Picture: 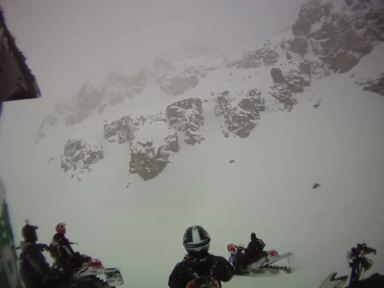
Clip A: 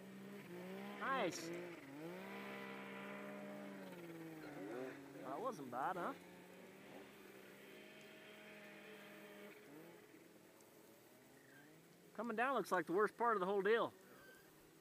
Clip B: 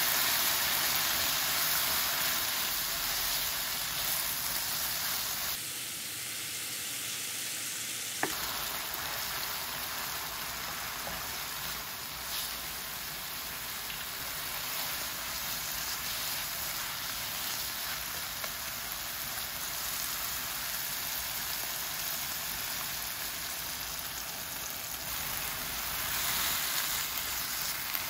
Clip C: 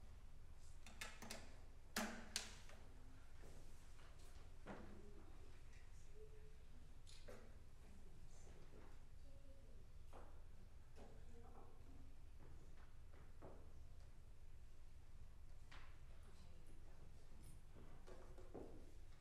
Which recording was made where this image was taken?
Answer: A